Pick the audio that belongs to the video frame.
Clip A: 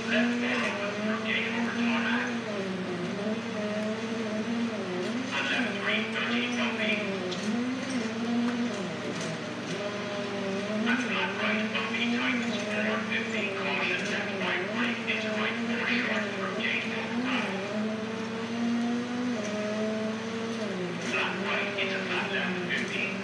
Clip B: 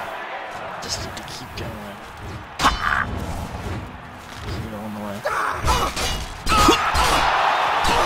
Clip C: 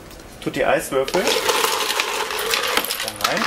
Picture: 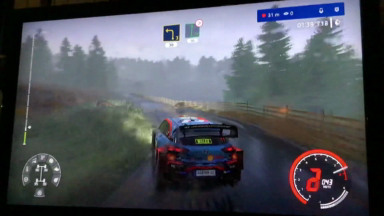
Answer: A